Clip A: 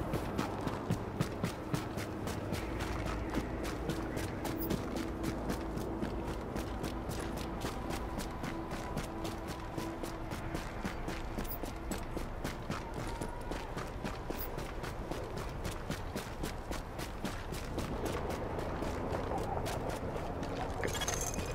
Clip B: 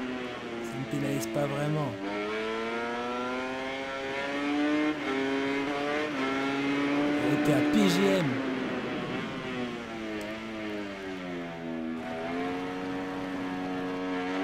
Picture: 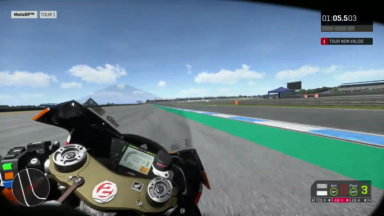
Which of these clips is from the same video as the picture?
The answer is B